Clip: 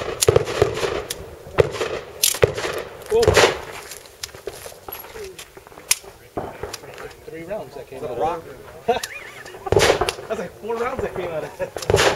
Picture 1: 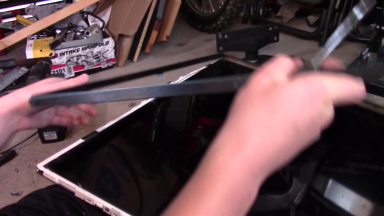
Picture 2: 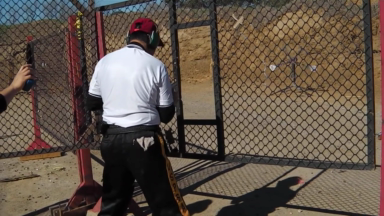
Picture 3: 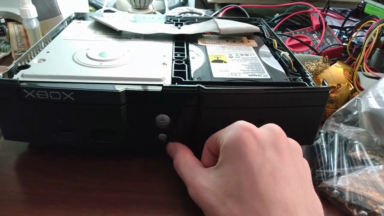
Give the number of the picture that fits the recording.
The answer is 2